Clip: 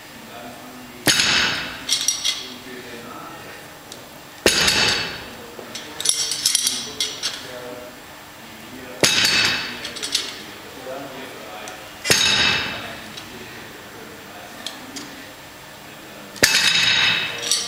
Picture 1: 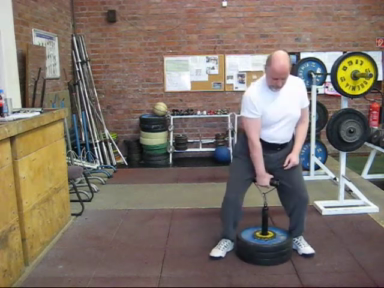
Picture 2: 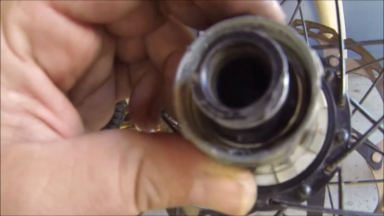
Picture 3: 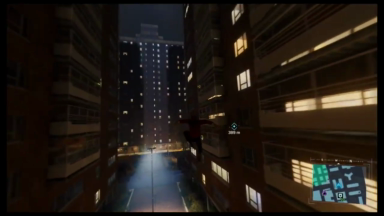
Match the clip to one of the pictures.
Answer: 1